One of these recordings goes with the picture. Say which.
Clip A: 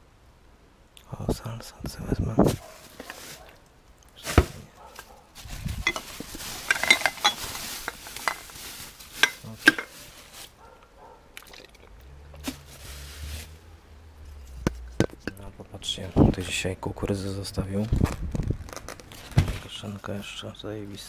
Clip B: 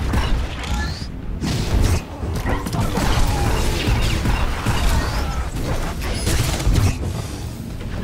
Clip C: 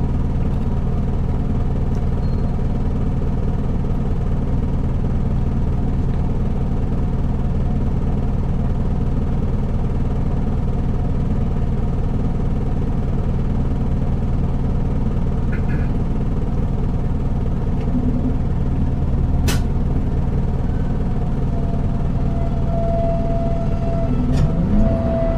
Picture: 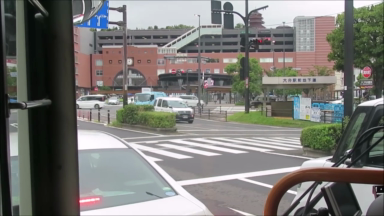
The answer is C